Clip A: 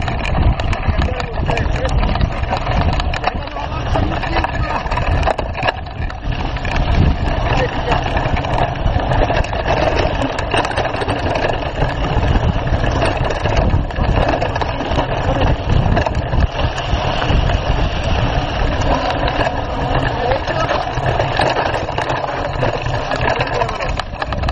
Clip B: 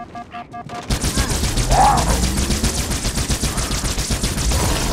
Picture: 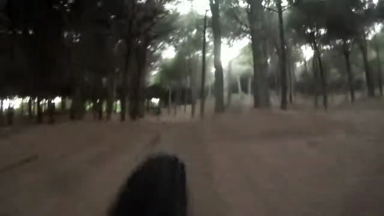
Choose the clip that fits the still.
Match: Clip A